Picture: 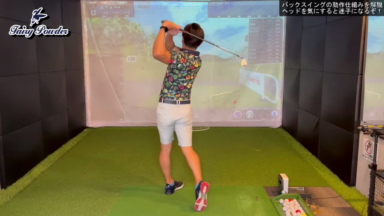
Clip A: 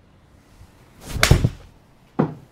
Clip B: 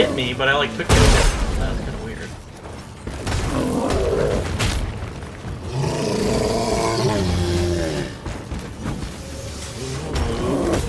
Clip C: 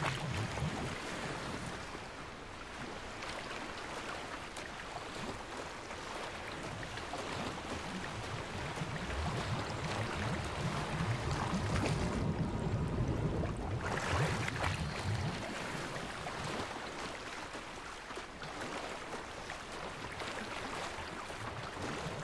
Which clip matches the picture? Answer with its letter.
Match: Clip A